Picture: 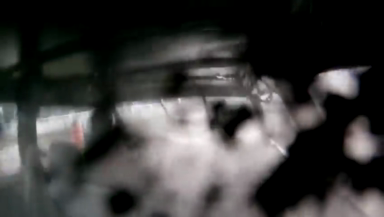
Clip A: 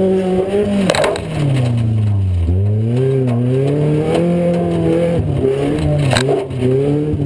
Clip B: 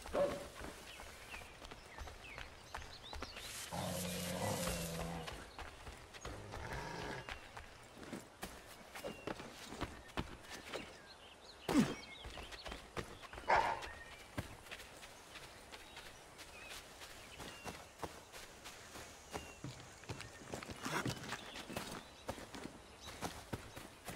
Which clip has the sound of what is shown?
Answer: A